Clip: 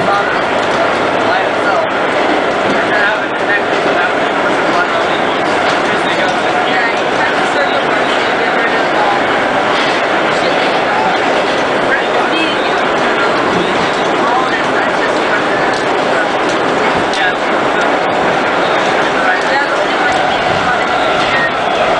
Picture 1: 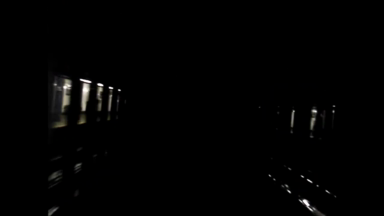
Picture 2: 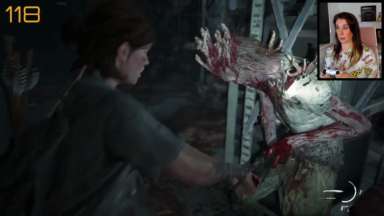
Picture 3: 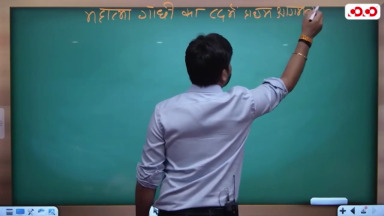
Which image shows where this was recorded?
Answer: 1